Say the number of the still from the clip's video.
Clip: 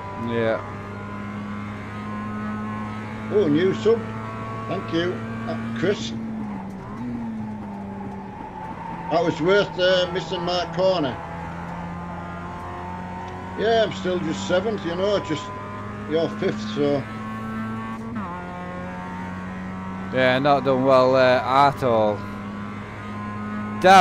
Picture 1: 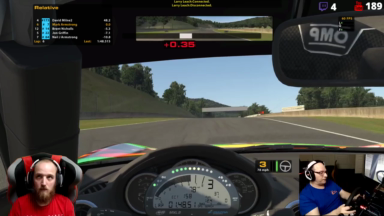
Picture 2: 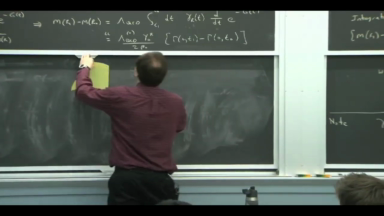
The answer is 1